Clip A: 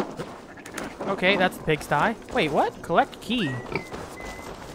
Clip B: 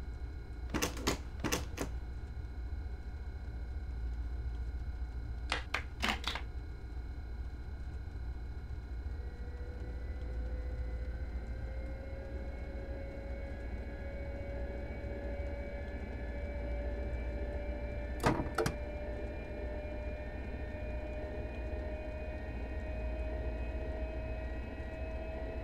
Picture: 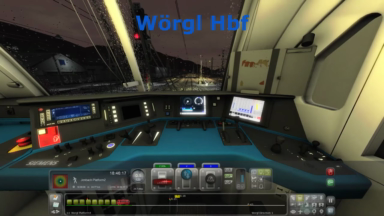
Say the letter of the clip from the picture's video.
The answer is B